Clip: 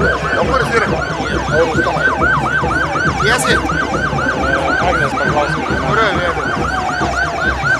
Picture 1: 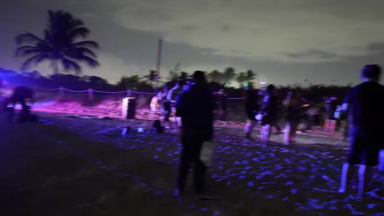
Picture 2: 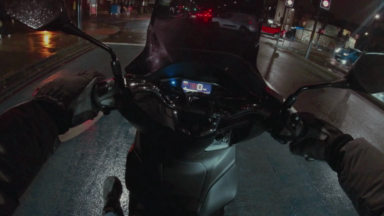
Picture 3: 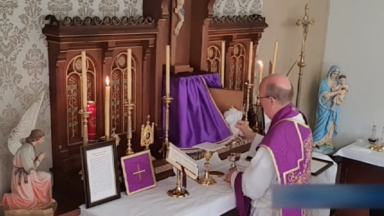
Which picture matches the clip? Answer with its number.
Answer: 1